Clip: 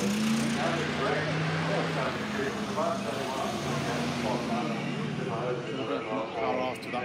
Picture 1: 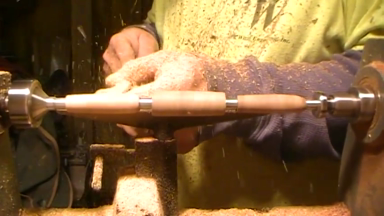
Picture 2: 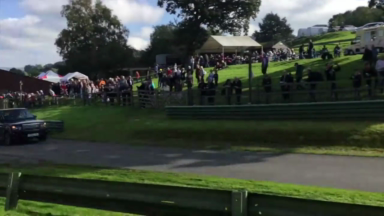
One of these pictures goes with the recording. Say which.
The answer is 2